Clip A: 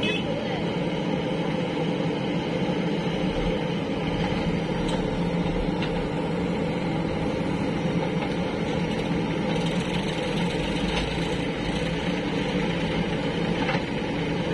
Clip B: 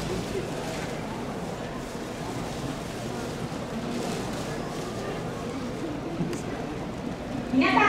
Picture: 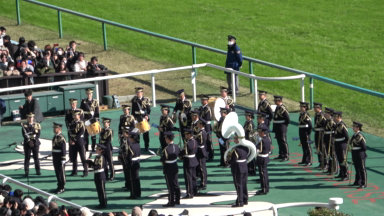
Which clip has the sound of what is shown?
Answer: B